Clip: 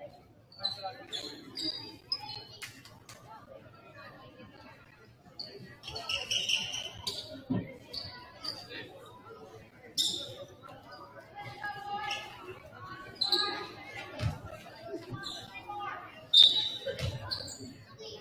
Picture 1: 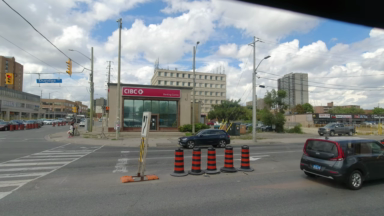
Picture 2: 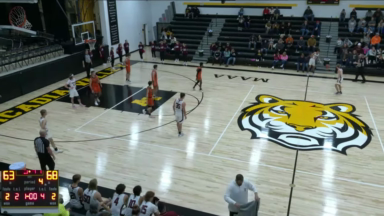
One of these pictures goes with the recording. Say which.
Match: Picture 2